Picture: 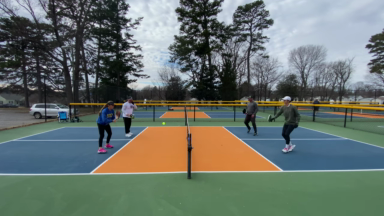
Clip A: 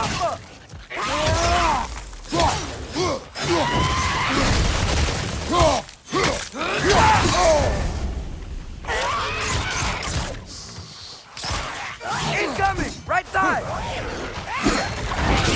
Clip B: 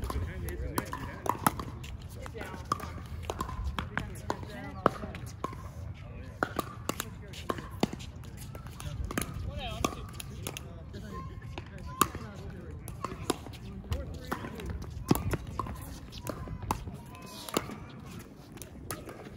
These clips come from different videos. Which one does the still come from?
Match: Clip B